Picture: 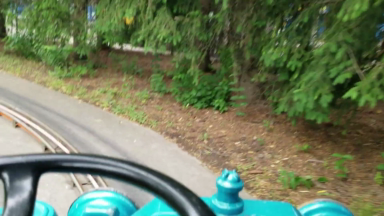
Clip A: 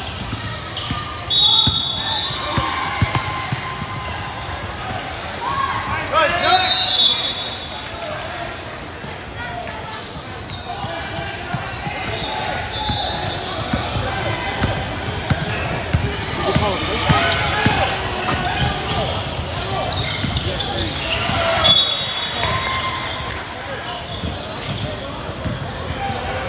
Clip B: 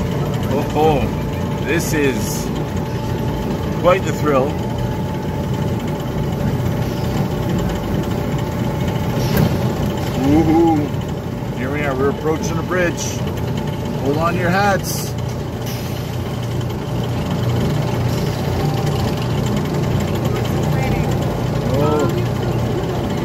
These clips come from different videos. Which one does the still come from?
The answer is B